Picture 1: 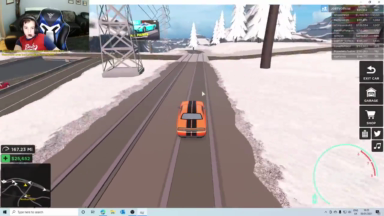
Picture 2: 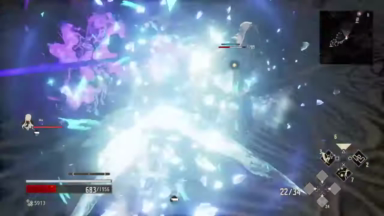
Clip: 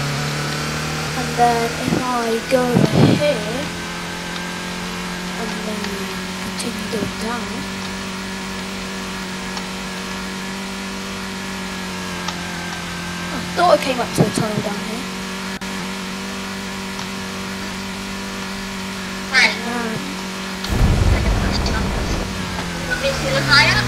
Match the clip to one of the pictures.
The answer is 1